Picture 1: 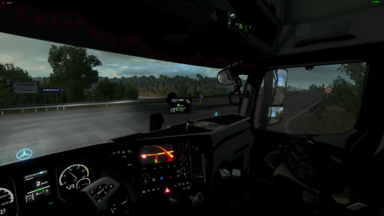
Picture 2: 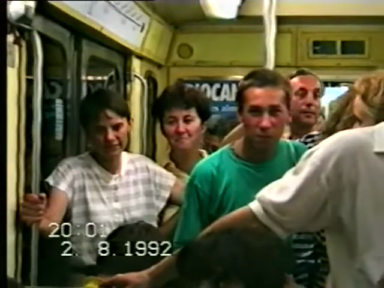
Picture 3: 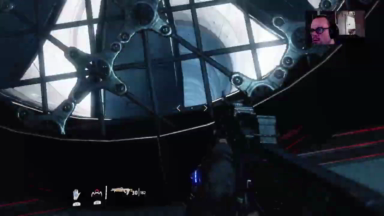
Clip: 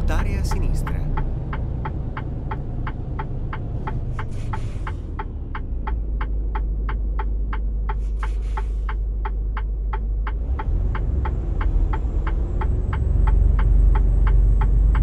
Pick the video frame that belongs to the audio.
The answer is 1